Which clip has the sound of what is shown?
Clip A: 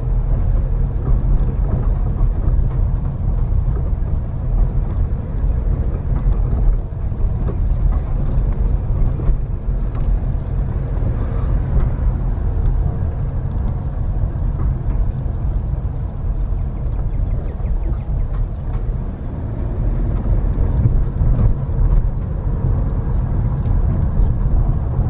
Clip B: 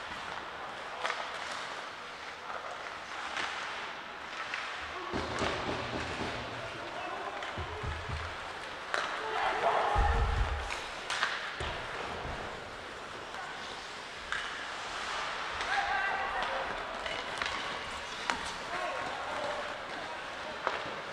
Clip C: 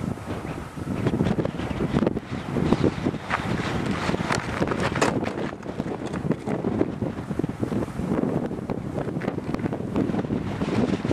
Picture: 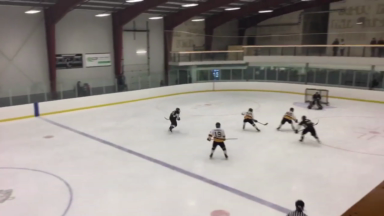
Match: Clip B